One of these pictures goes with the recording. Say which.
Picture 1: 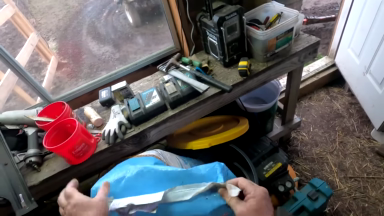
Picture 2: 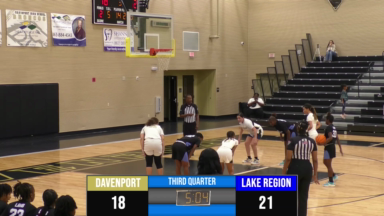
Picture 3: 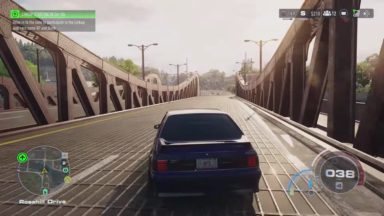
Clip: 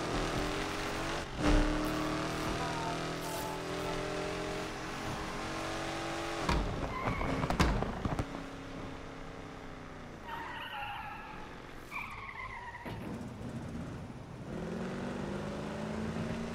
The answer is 3